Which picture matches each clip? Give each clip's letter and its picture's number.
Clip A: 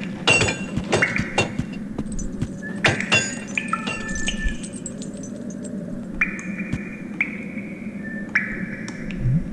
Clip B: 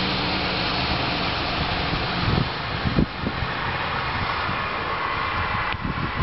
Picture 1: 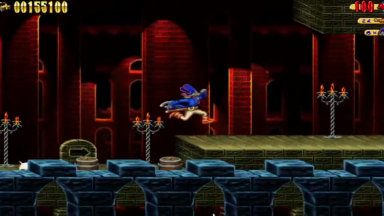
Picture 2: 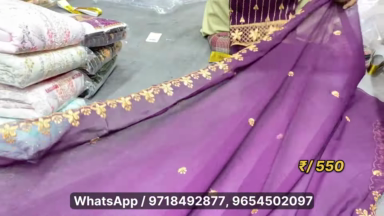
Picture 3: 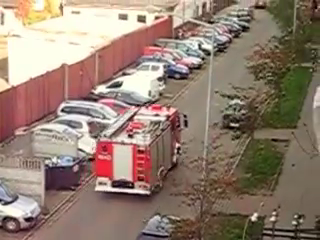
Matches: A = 1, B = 3